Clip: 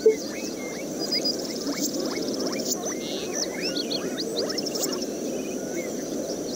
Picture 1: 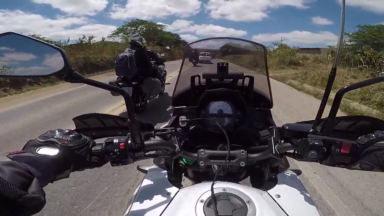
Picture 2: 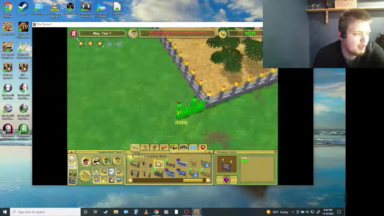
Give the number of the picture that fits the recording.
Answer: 2